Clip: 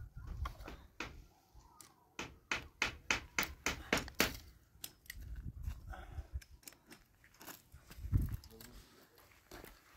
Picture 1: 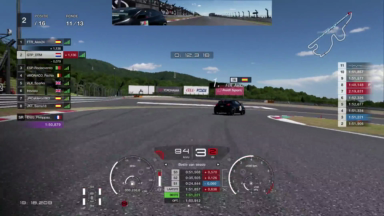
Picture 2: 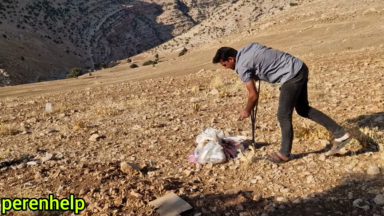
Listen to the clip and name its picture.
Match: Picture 2